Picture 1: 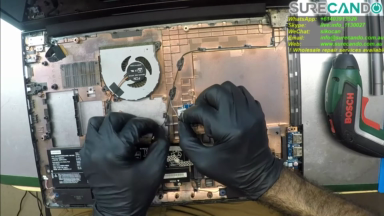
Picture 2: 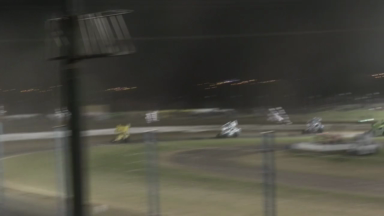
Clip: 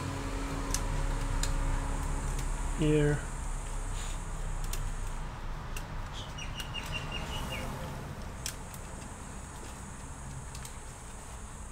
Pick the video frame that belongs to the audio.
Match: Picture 1